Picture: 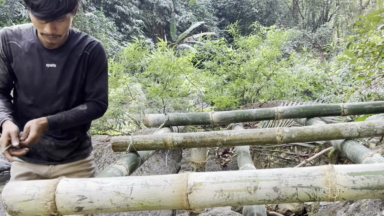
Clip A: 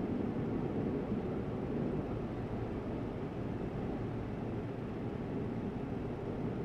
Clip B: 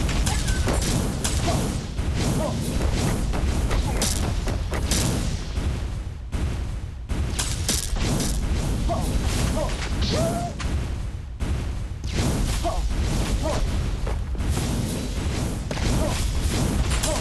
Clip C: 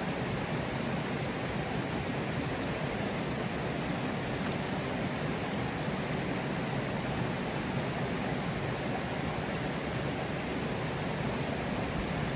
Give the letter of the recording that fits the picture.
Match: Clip C